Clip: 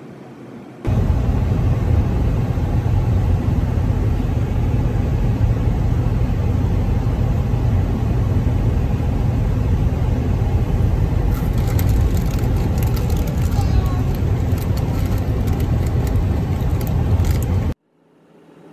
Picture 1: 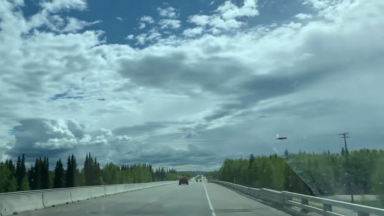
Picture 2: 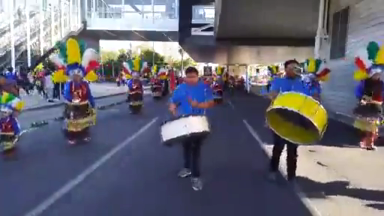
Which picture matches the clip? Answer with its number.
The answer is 1